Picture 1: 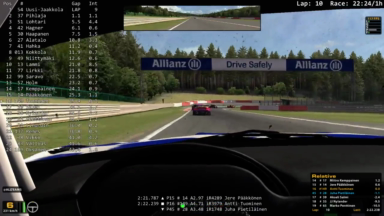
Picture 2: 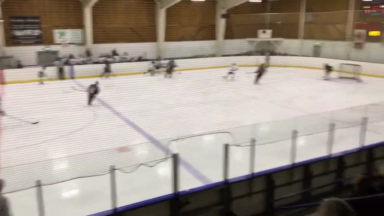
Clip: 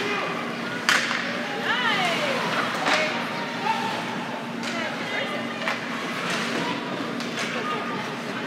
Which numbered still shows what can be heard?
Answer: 2